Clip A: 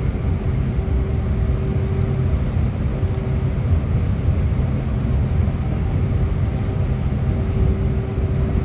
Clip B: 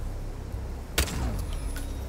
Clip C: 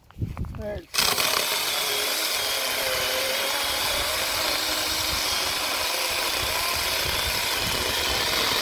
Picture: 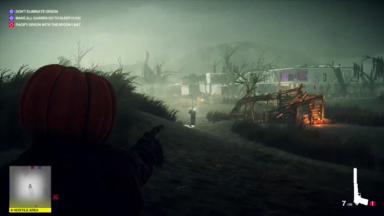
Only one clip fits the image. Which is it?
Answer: B